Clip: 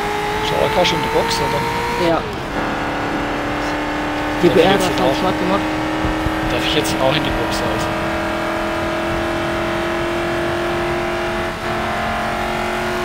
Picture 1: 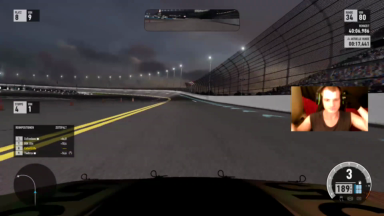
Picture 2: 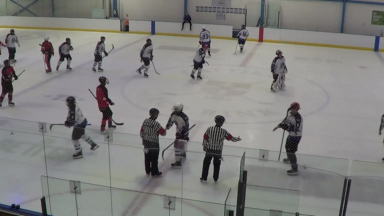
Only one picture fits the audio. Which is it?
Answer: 1